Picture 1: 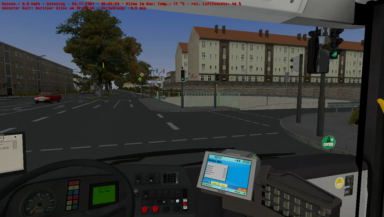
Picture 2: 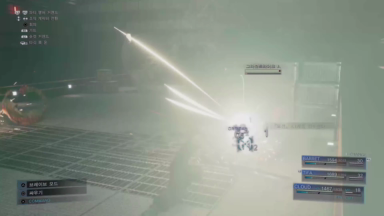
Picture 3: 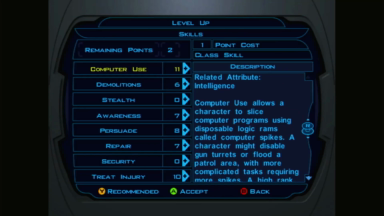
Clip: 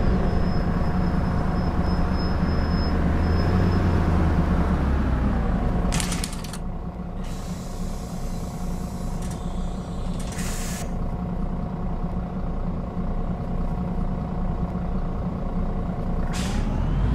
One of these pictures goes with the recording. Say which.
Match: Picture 1